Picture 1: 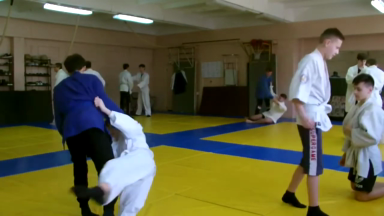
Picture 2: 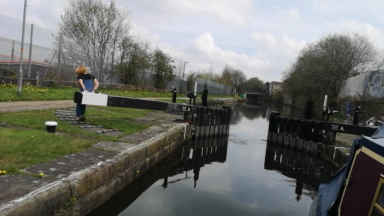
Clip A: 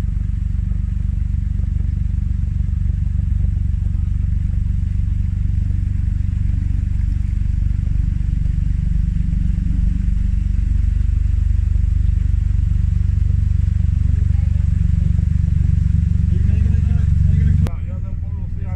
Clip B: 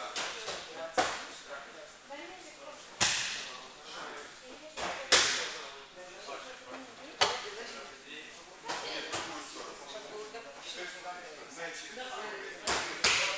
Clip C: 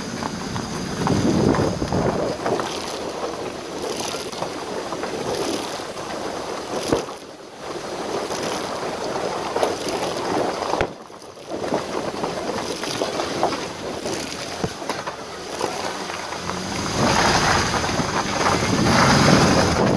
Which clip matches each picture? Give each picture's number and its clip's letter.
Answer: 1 B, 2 A